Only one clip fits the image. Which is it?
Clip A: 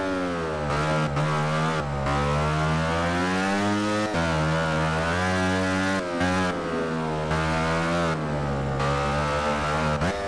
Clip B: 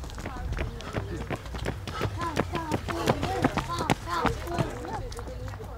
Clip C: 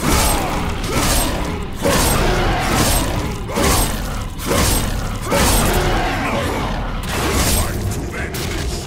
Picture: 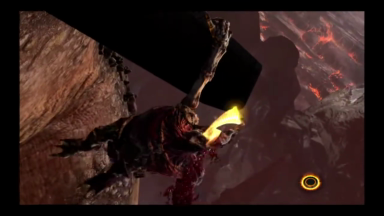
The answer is C